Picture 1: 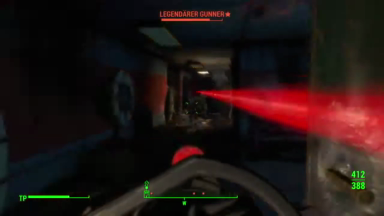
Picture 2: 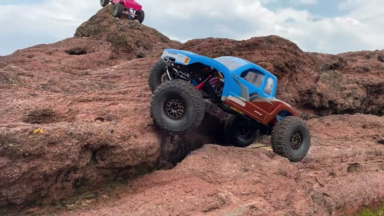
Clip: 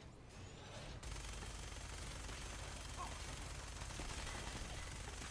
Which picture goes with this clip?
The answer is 1